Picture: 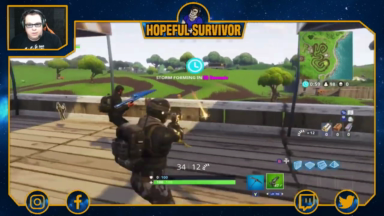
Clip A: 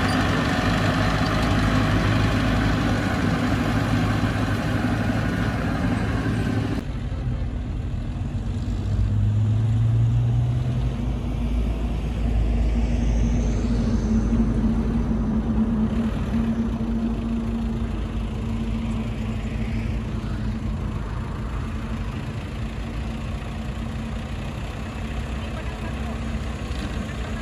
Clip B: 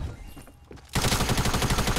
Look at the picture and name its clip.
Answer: B